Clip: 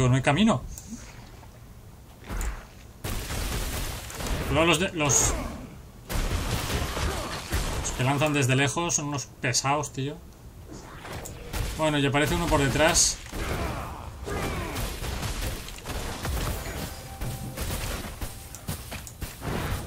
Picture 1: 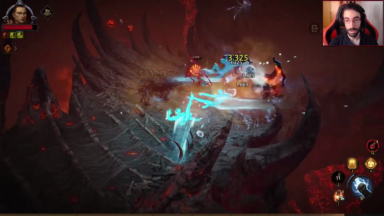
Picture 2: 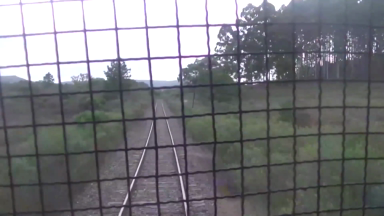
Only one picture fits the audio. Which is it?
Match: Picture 1